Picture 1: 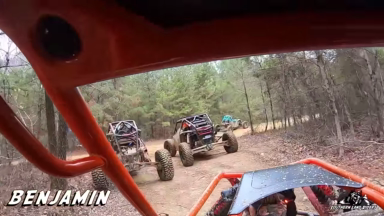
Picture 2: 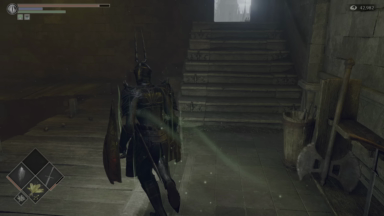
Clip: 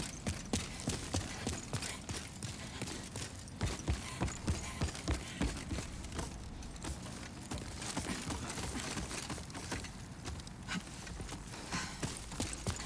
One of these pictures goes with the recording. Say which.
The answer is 2